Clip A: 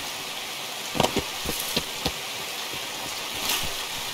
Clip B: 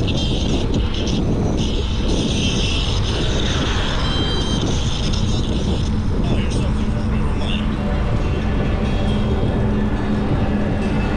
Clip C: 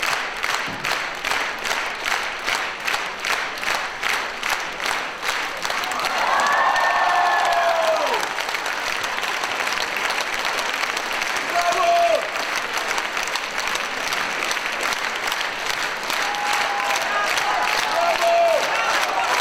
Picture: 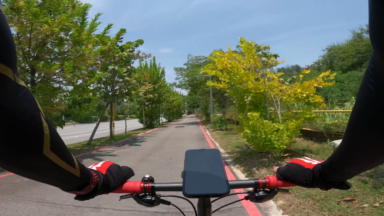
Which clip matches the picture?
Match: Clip B